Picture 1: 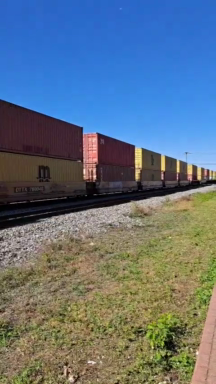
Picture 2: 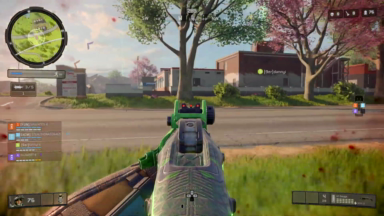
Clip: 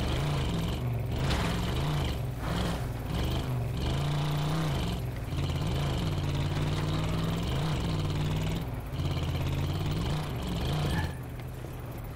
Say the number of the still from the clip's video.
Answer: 2